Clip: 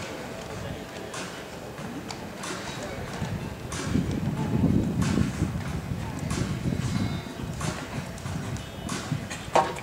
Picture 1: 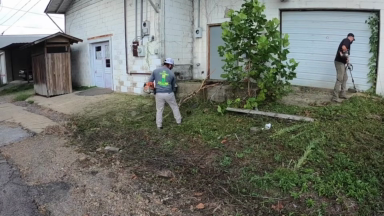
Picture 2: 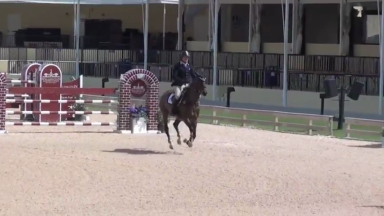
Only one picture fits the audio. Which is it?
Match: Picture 2